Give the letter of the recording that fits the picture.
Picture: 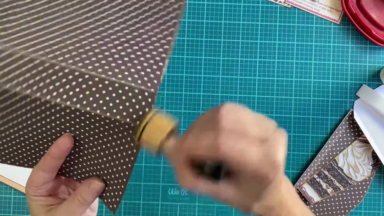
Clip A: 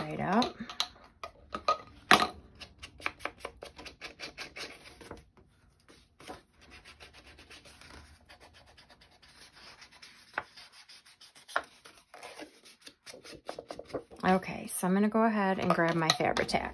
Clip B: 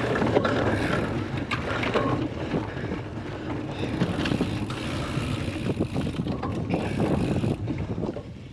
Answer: A